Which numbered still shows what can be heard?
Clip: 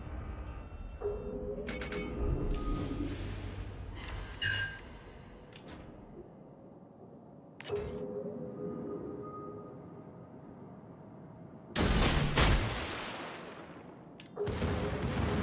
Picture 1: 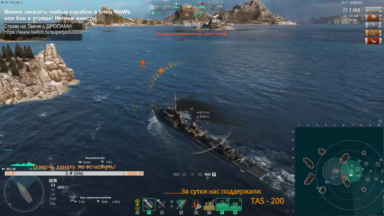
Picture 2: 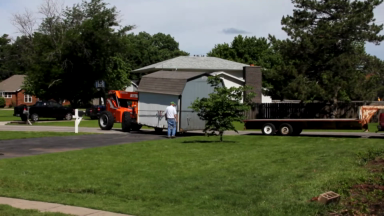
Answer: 1